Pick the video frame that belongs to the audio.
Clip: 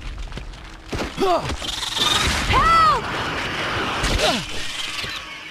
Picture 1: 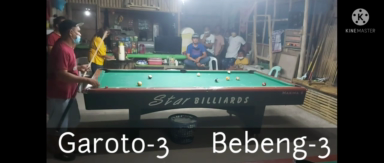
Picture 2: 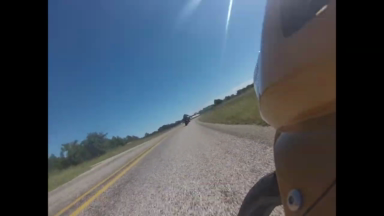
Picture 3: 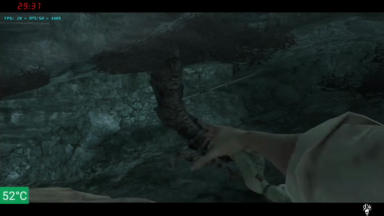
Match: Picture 3